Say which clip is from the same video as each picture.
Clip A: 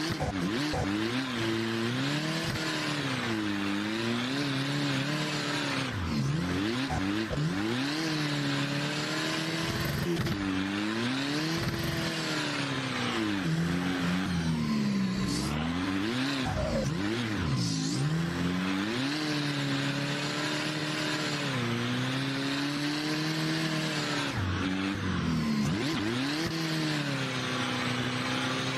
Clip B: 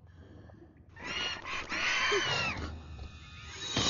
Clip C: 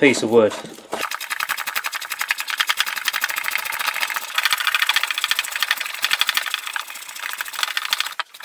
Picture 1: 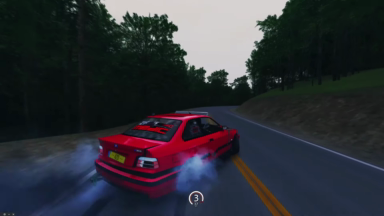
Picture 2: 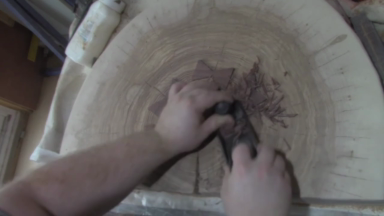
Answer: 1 A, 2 C